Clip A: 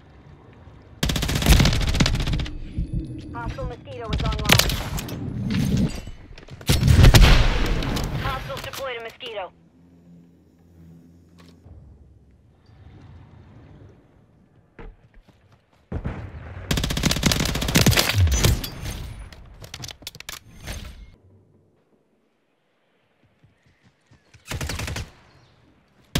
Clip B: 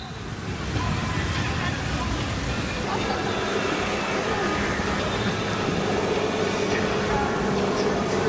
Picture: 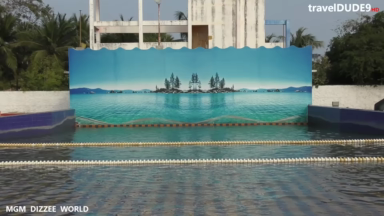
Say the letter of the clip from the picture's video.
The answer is B